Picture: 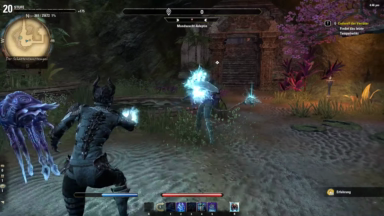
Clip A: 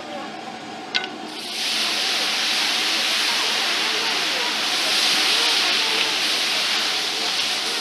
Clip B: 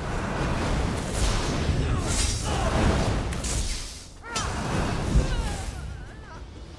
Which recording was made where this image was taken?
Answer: B